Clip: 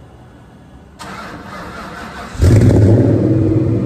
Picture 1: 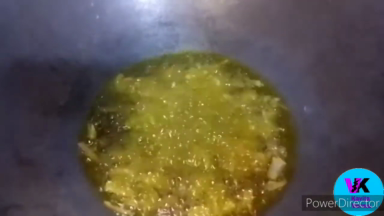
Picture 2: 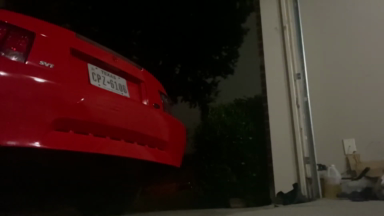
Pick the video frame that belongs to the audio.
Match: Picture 2